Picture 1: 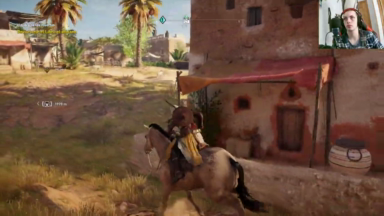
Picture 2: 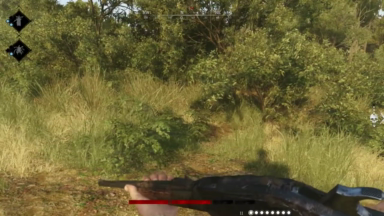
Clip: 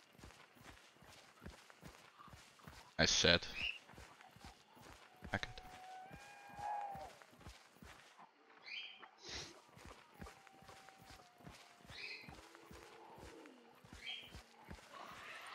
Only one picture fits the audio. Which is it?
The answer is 2